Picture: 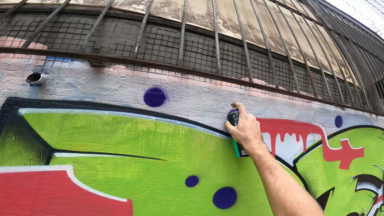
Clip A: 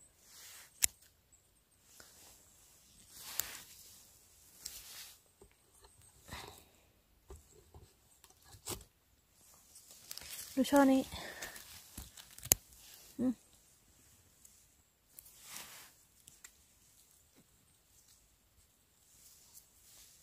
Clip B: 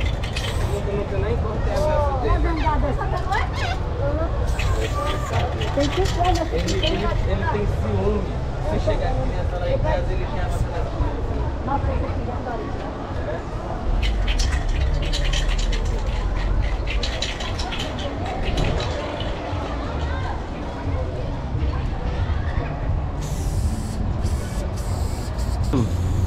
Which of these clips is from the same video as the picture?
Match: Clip B